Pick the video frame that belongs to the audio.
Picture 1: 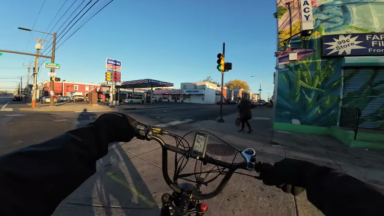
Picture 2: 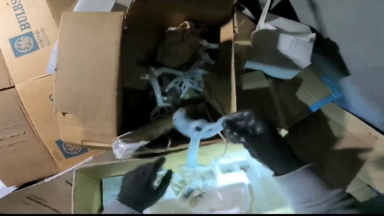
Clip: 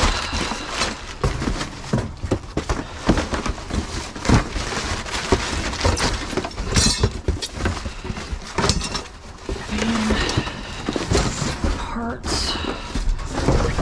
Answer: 2